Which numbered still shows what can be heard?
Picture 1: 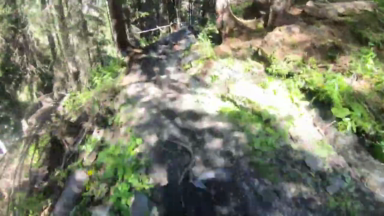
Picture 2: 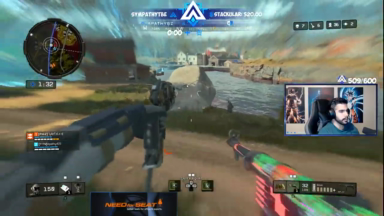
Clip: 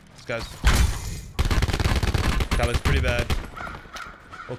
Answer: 2